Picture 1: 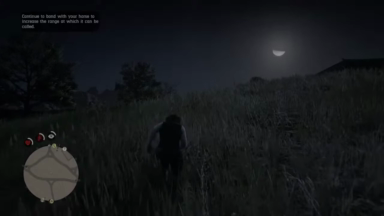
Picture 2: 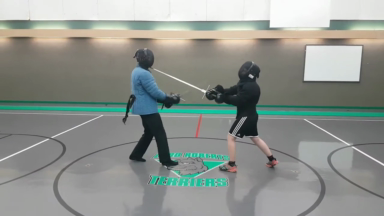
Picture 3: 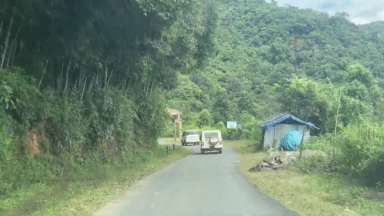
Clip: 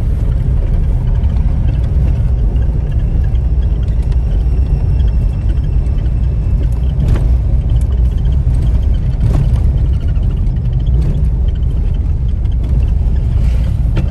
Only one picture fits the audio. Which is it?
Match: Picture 3